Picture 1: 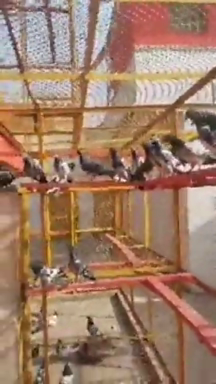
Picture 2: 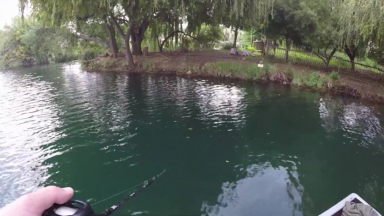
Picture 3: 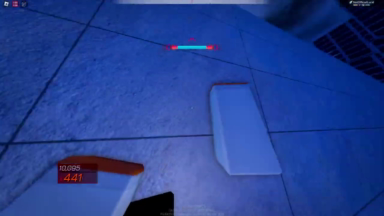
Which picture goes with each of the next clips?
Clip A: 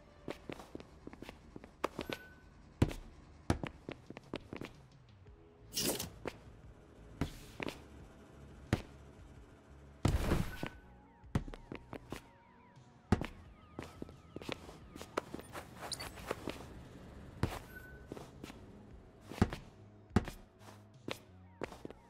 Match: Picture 3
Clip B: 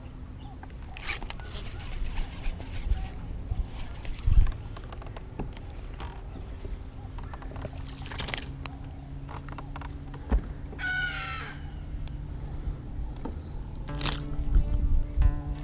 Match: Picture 2